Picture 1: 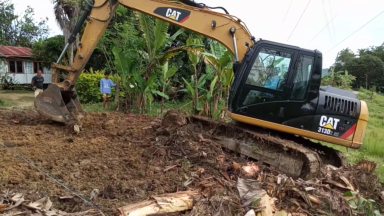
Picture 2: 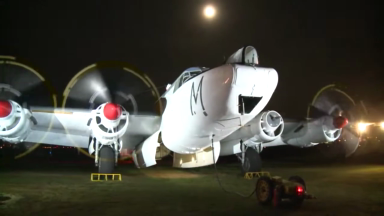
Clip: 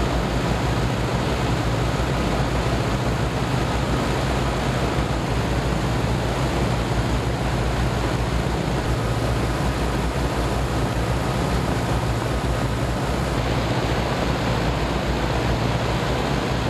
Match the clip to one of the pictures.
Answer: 2